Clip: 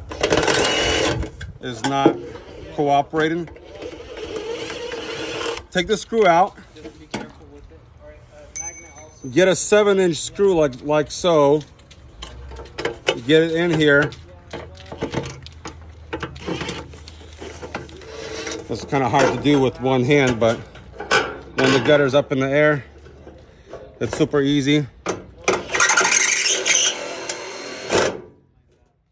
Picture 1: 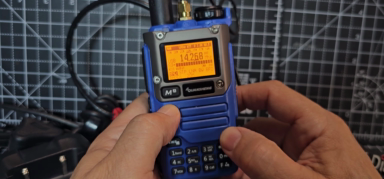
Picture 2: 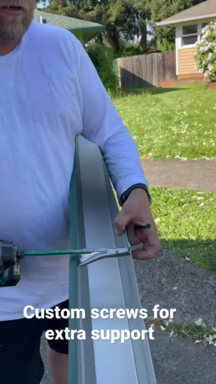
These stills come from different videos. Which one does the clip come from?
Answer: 2